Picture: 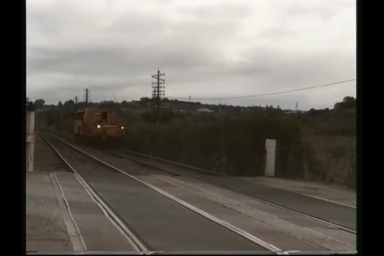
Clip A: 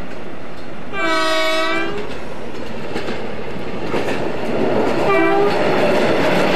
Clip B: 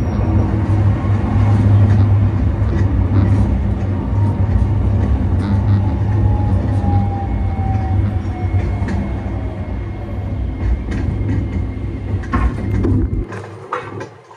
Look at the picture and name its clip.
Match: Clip A